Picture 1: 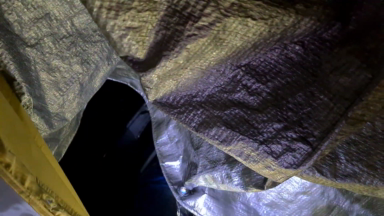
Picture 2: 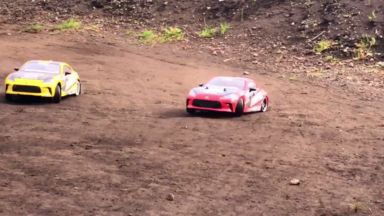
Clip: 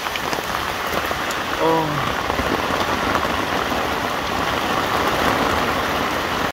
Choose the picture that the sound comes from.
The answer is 1